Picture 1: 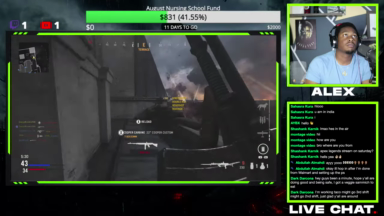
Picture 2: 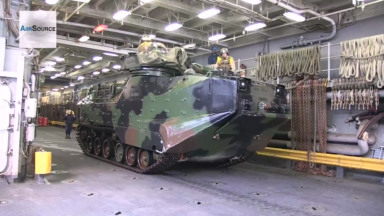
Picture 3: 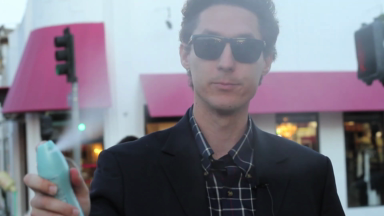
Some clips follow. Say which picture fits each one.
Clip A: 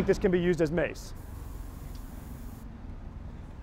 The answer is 3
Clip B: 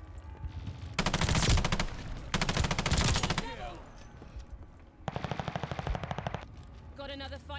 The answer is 1